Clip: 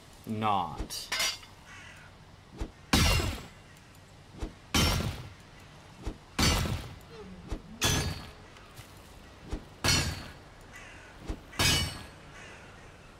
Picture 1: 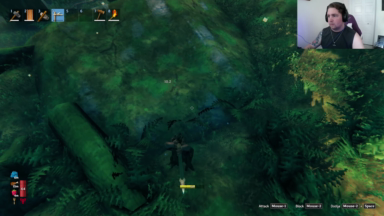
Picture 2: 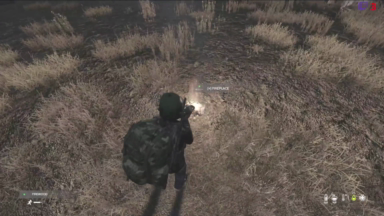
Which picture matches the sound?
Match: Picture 1